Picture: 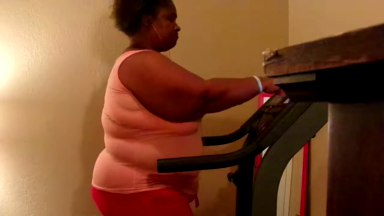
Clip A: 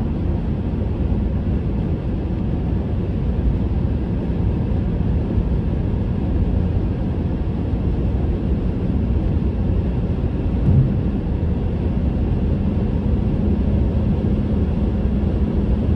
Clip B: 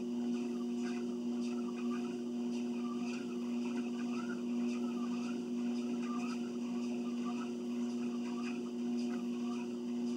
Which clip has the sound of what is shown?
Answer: B